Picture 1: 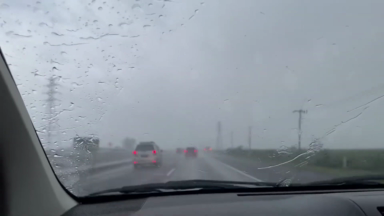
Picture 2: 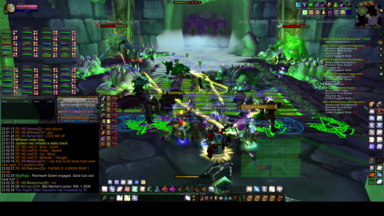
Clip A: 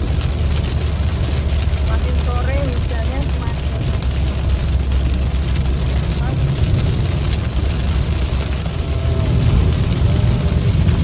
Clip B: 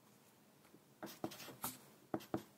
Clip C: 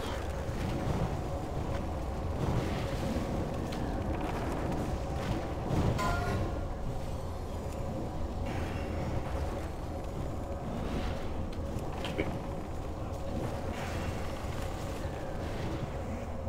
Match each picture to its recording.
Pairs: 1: A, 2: C